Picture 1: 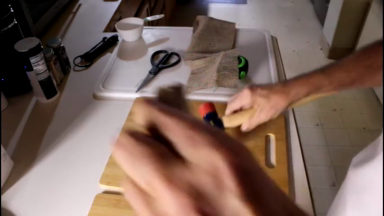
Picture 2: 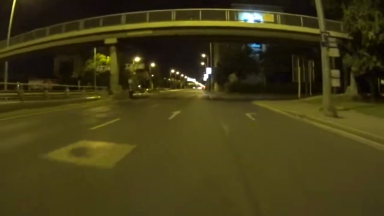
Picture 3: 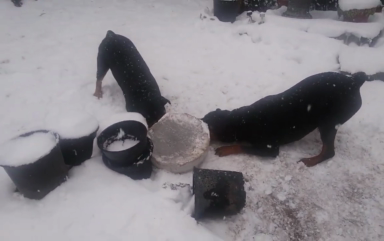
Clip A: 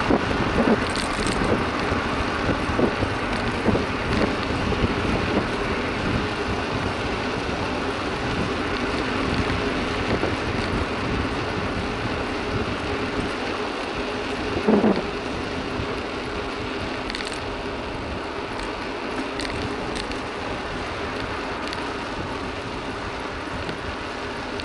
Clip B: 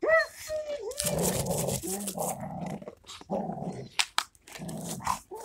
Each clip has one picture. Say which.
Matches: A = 2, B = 3